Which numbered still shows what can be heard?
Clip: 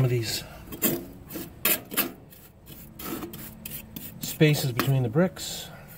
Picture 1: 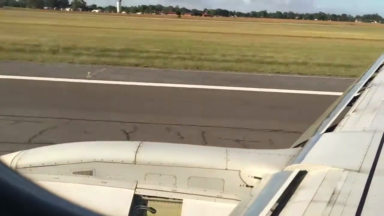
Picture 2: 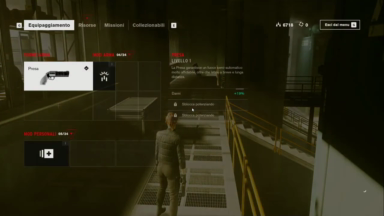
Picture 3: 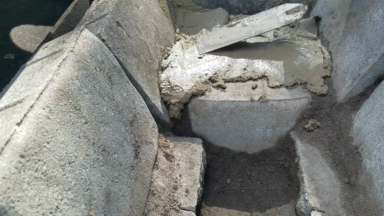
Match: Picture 3